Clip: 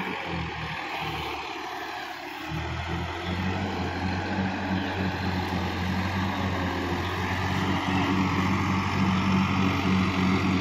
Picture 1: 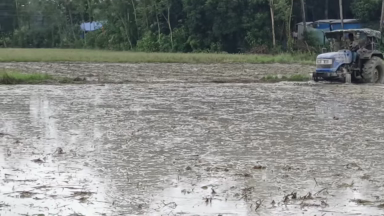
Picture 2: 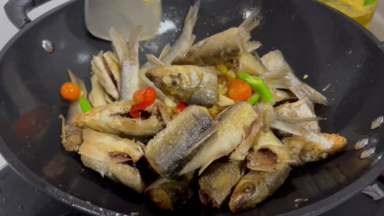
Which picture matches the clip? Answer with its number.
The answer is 1